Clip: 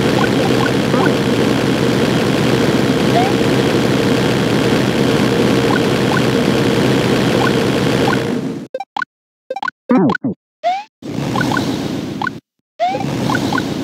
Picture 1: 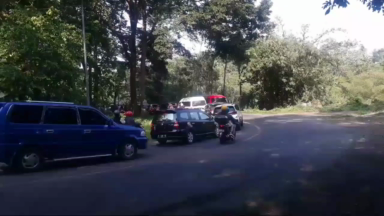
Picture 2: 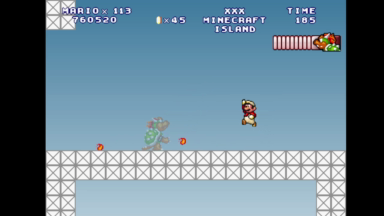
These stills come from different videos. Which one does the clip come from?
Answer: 2